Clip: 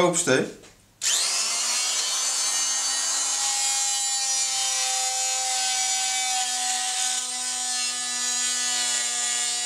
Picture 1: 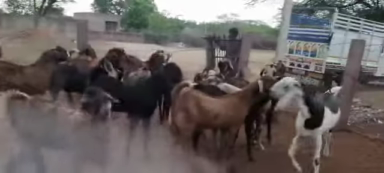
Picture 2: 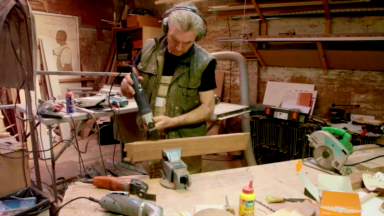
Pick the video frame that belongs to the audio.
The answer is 2